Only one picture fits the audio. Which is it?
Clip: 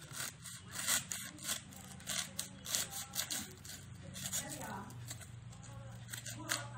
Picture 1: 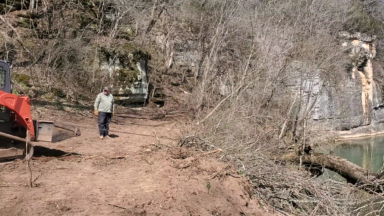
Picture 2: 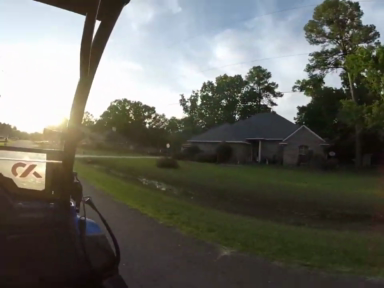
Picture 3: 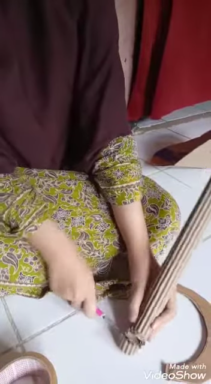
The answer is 3